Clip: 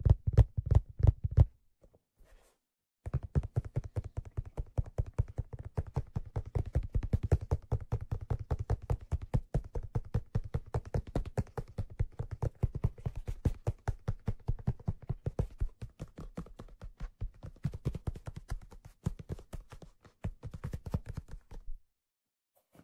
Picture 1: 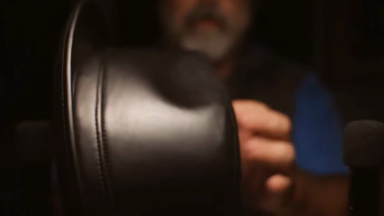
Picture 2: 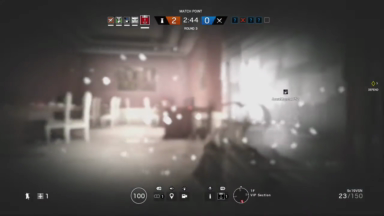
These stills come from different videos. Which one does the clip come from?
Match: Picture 1